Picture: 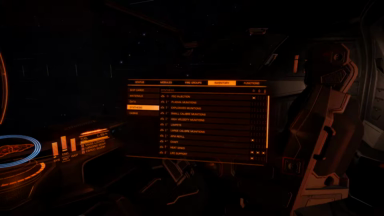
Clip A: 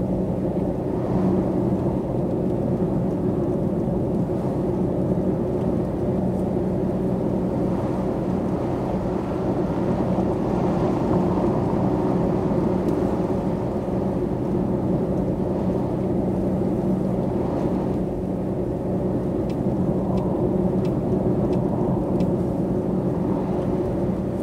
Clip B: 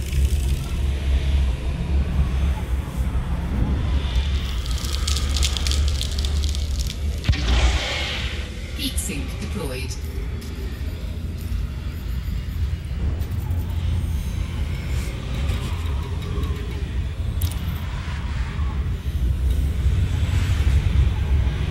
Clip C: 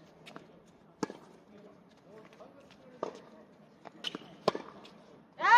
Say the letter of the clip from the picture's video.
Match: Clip B